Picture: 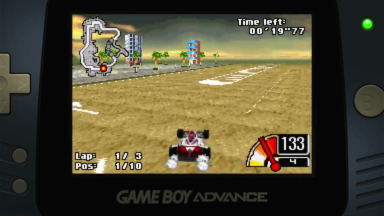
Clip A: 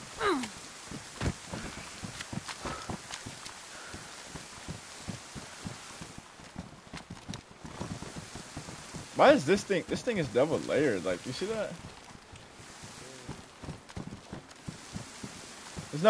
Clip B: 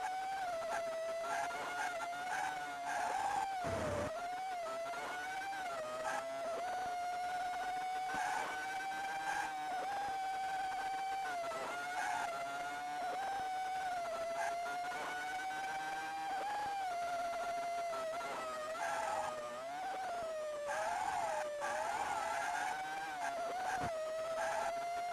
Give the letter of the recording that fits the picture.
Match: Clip B